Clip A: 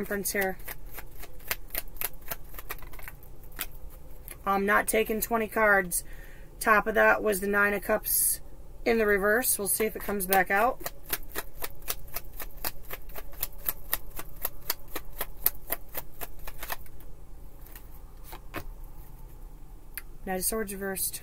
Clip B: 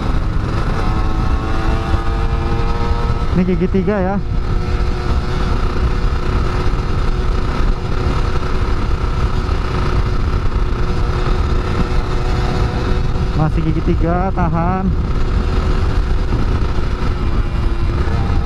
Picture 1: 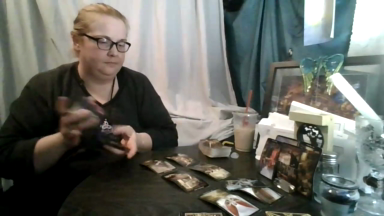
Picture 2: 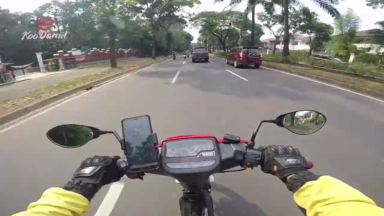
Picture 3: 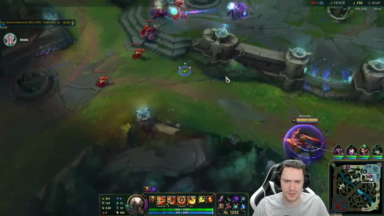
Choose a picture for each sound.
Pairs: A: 1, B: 2